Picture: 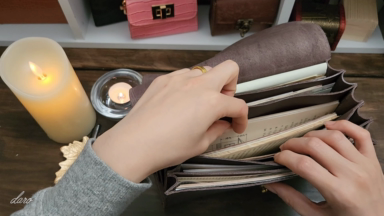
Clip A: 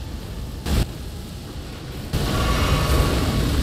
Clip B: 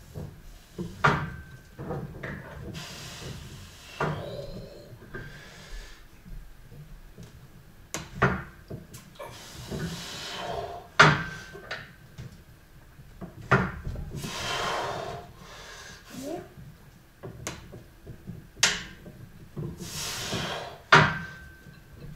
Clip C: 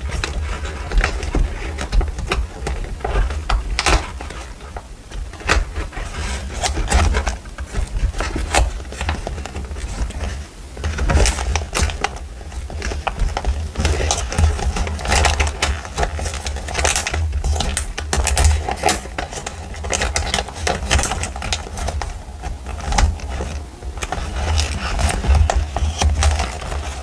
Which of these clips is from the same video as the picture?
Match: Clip C